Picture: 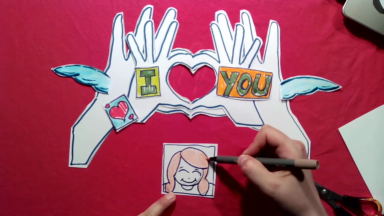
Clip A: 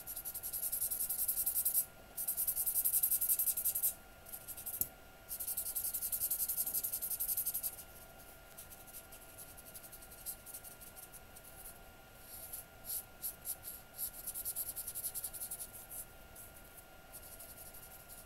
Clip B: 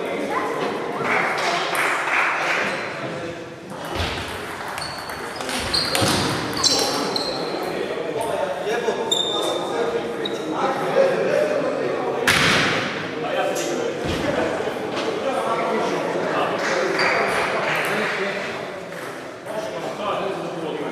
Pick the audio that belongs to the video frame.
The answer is A